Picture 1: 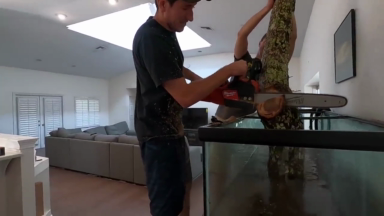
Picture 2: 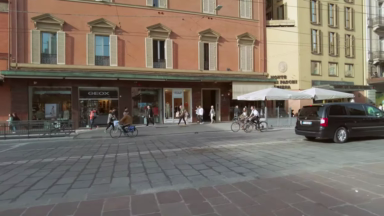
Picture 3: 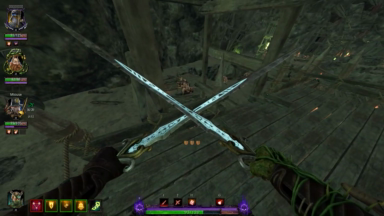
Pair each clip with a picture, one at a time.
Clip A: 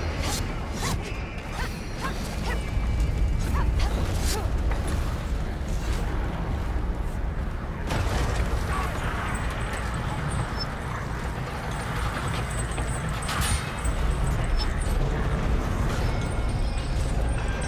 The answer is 3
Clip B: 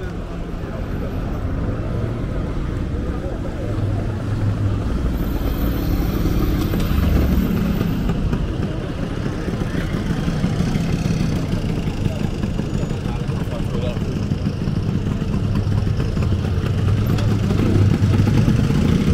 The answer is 2